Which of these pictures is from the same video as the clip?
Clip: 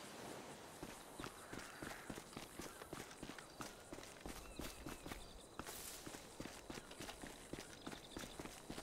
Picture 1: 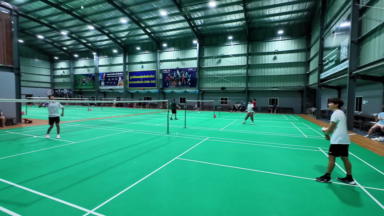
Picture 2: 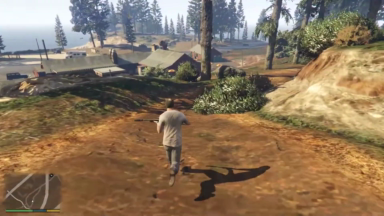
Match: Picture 2